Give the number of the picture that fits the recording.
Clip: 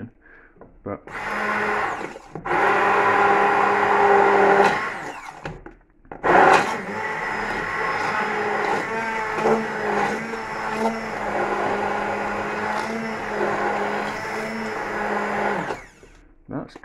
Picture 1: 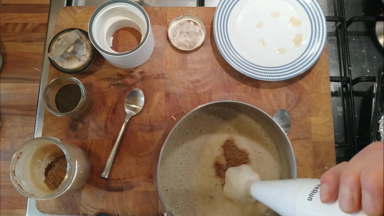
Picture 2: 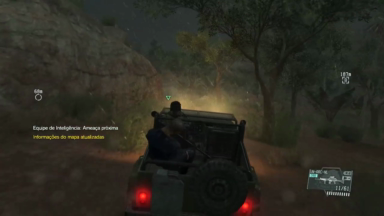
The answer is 1